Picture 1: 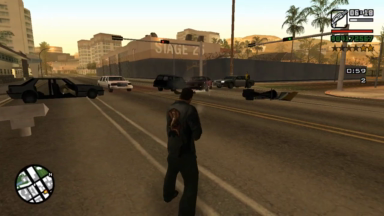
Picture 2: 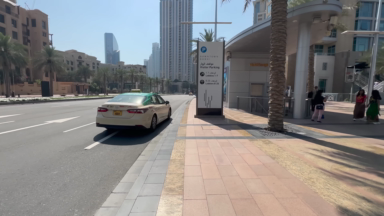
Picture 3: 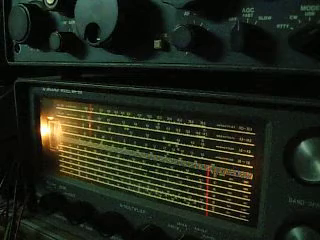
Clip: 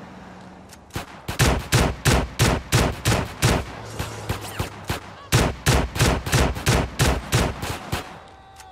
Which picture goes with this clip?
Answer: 1